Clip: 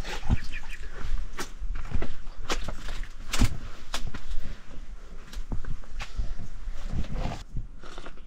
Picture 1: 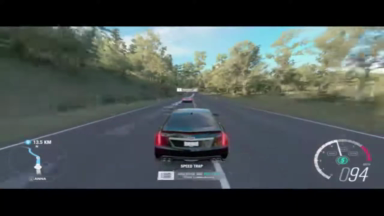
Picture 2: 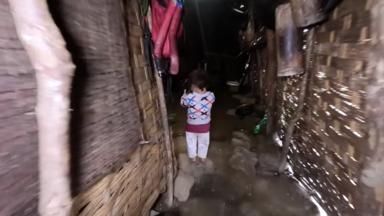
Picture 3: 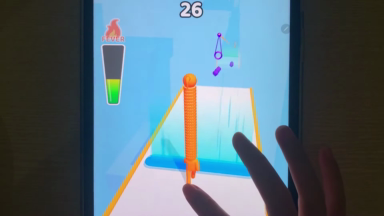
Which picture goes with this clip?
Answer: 2